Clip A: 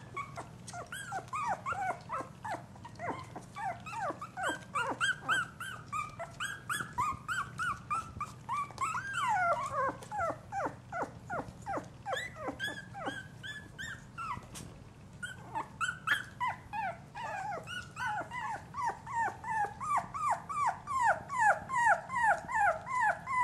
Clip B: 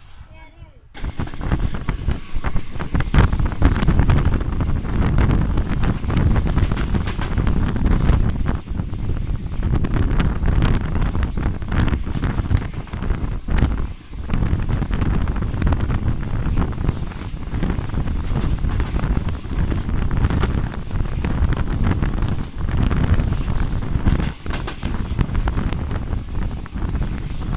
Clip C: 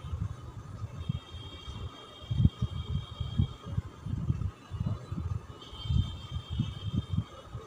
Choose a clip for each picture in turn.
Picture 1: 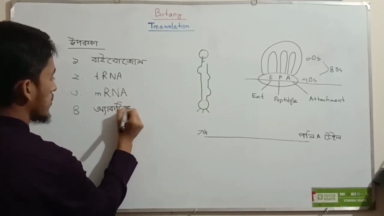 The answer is C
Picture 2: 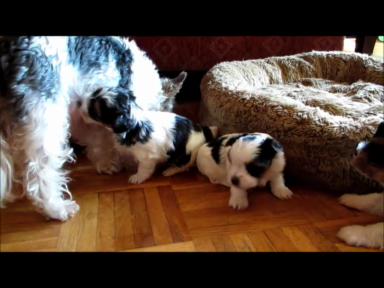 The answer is A